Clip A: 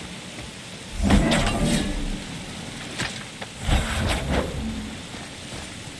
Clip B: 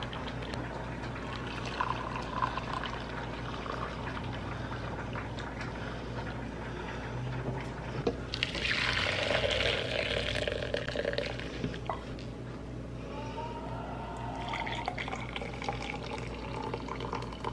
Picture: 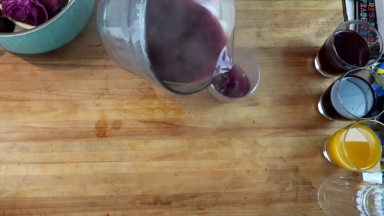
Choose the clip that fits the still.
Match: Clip B